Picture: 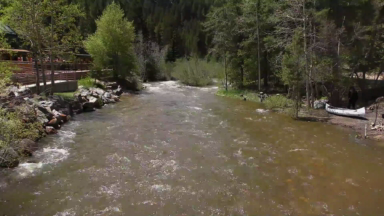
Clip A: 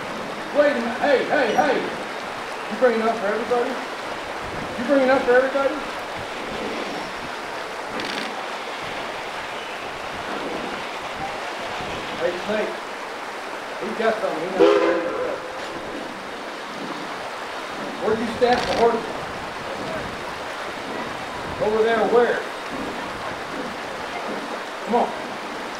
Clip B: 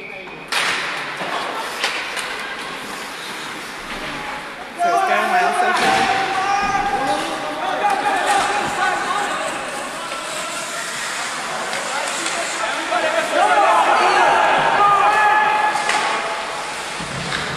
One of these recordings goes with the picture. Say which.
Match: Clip A